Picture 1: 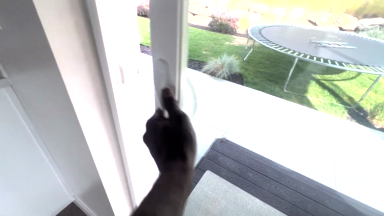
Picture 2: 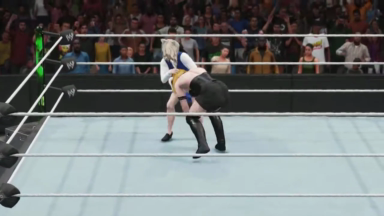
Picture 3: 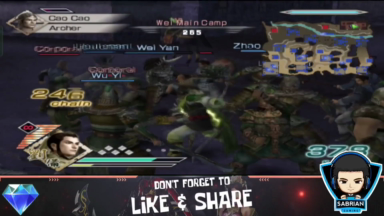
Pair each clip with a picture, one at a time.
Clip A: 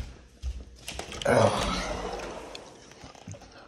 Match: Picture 1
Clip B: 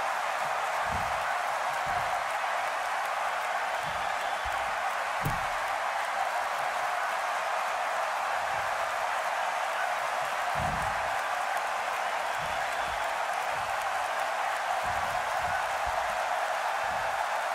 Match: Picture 2